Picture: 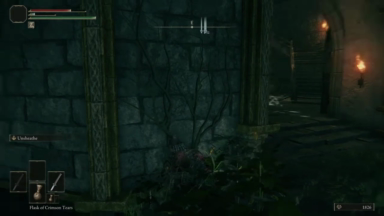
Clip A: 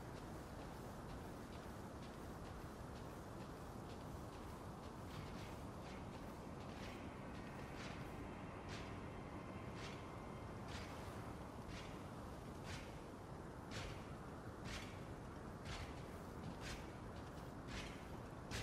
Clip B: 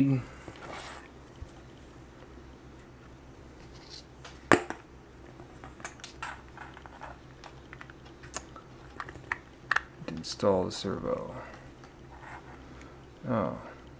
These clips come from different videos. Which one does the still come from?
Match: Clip A